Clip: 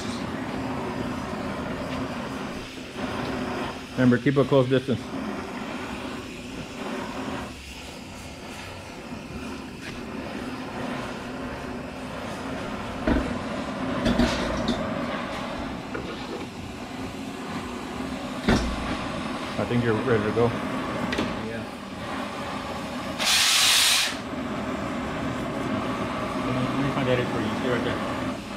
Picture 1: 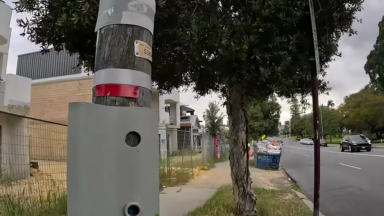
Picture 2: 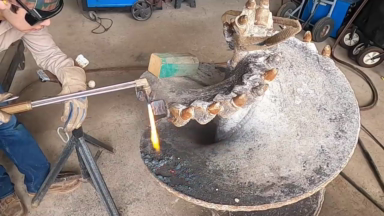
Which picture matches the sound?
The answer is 2